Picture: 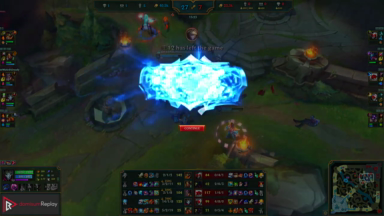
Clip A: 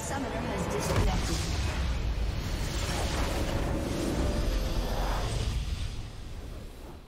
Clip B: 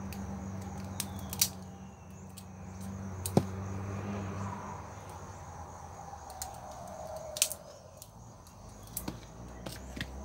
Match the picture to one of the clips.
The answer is A